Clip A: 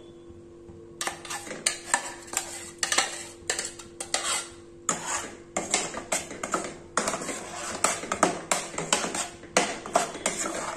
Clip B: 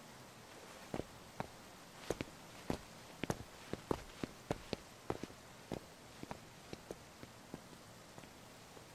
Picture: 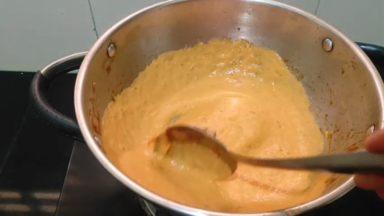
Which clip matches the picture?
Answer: A